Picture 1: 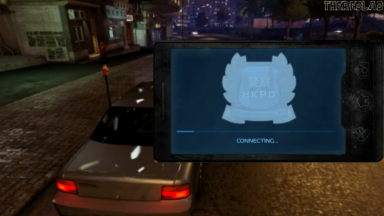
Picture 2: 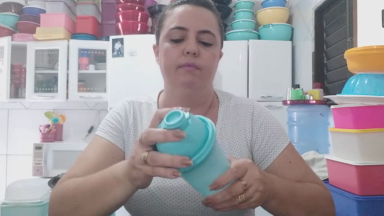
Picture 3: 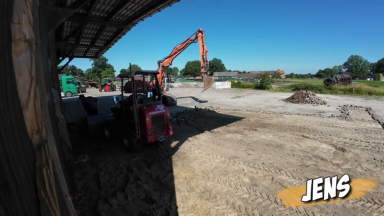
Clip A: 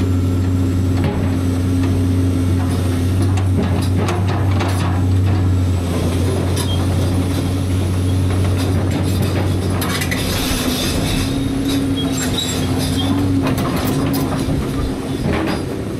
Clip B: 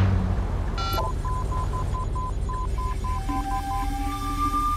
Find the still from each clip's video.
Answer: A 3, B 1